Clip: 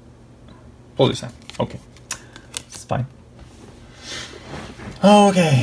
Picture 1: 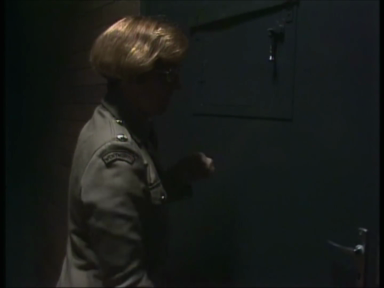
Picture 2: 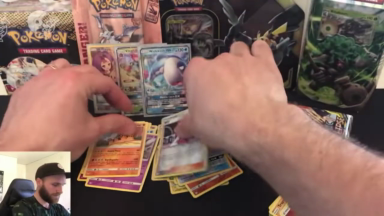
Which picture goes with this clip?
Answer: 2